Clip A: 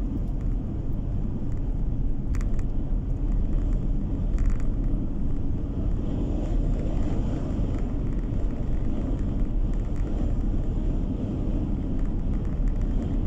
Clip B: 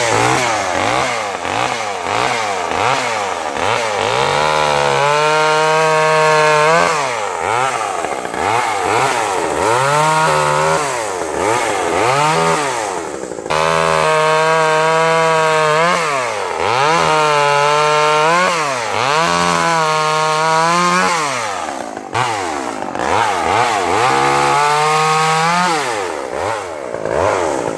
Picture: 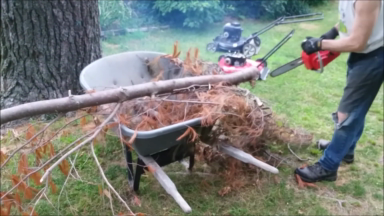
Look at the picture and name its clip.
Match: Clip B